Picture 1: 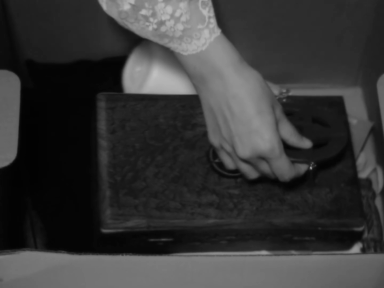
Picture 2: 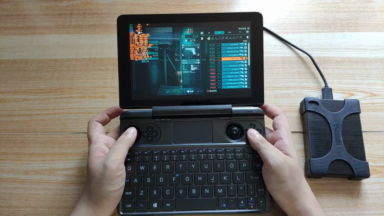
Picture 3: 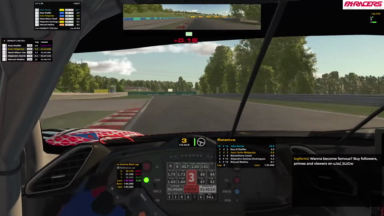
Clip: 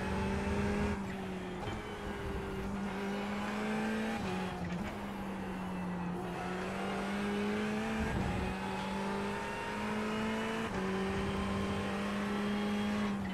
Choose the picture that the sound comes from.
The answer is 3